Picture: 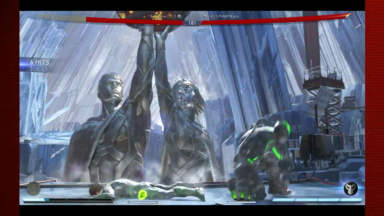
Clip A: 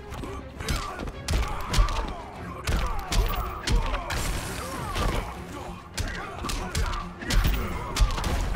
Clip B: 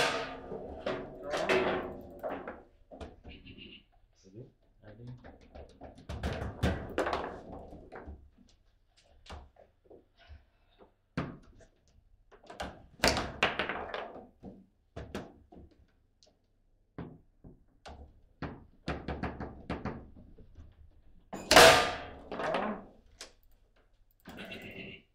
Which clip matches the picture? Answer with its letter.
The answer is A